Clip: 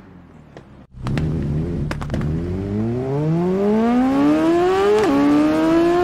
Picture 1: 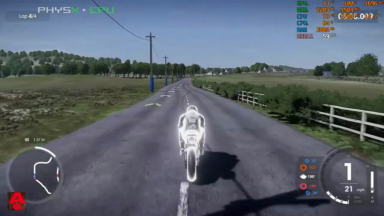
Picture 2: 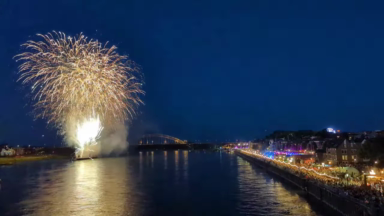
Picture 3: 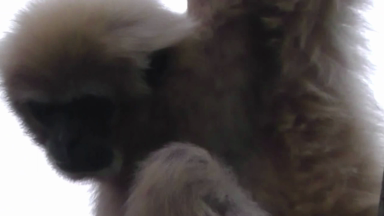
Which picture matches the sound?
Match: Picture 1